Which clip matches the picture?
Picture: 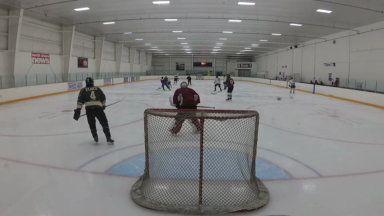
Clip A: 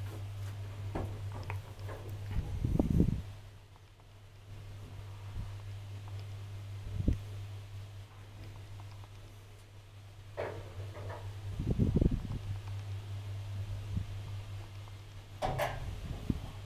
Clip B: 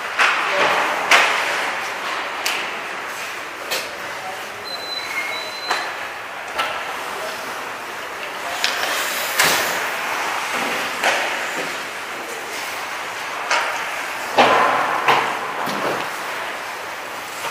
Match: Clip B